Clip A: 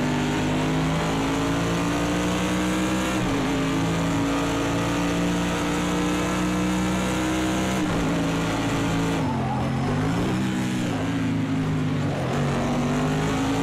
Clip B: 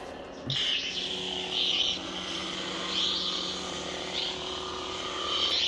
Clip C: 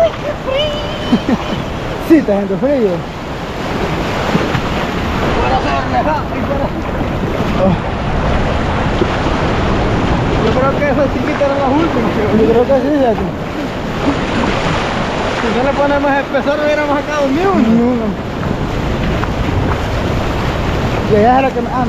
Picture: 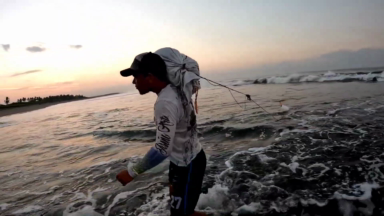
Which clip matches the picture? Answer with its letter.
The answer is C